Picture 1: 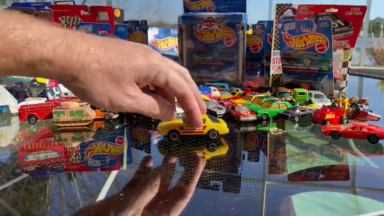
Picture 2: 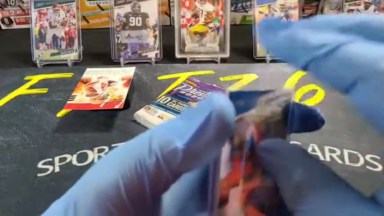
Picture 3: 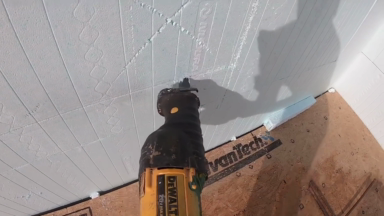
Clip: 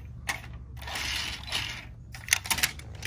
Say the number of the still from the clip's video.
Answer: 1